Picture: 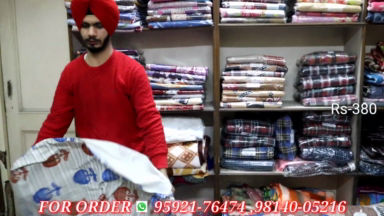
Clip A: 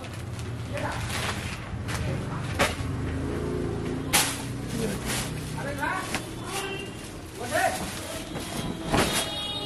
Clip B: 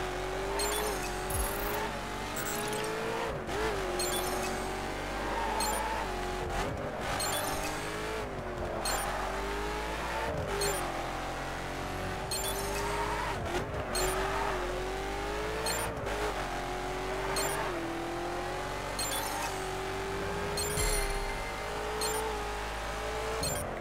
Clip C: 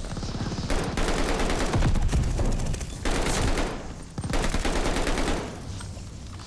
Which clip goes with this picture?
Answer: A